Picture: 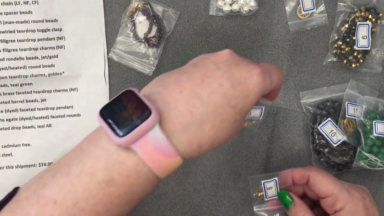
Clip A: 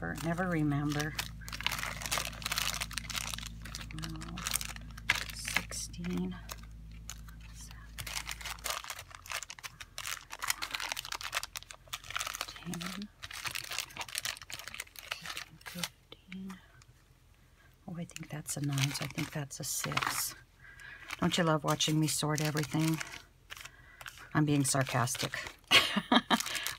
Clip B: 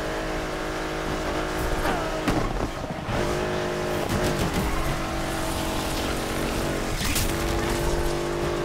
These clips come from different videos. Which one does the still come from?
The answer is A